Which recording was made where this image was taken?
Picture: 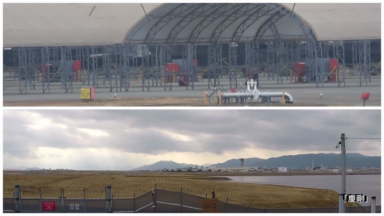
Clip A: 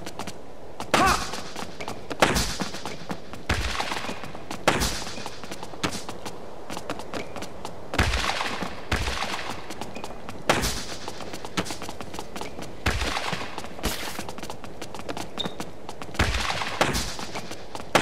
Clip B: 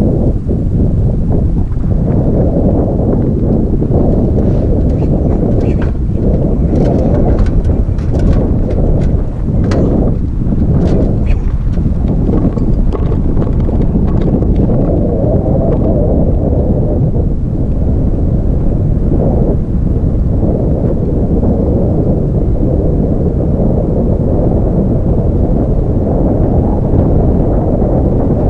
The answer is B